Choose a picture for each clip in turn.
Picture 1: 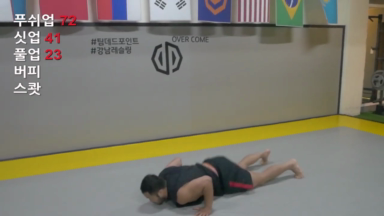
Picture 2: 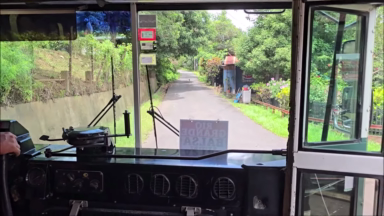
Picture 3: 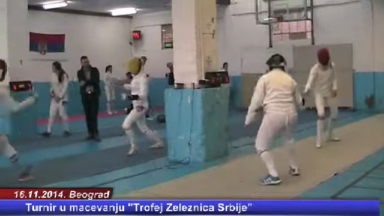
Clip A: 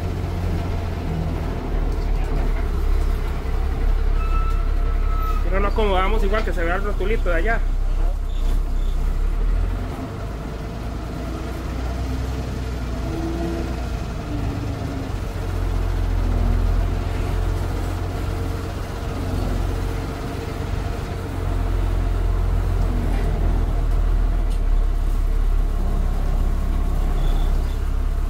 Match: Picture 2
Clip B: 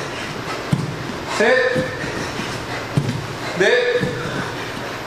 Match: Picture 1